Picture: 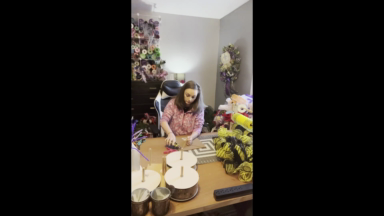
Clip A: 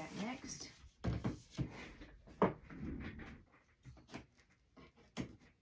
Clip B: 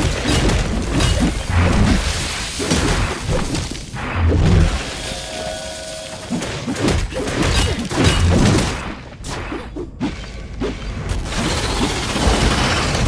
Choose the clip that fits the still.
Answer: A